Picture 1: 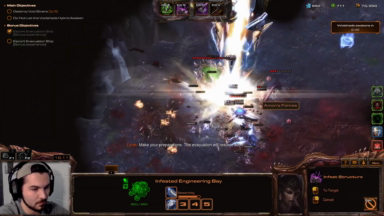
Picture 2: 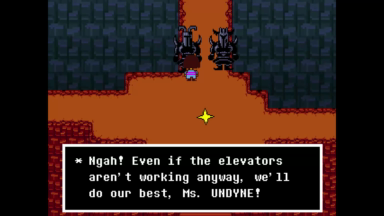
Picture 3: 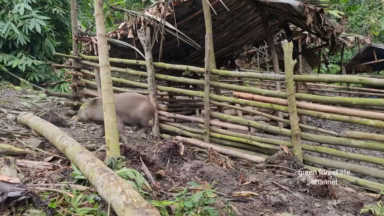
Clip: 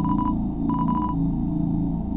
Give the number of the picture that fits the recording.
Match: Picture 2